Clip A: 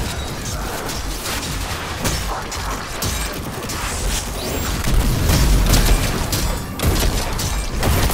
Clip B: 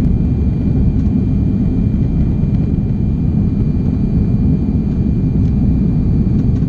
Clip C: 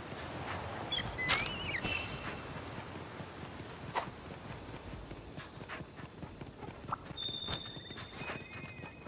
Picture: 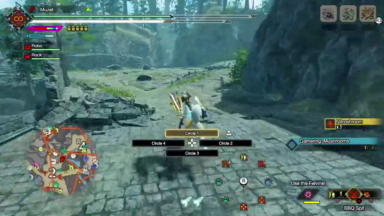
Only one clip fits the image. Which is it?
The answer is C